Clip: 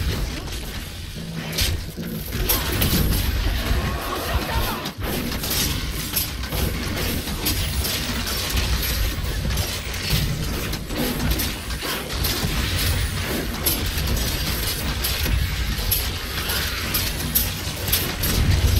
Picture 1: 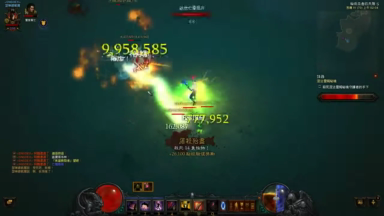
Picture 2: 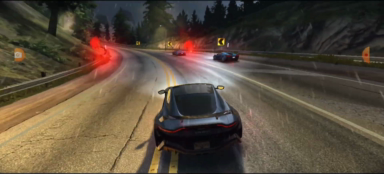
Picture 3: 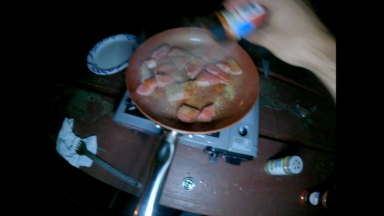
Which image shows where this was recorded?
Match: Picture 1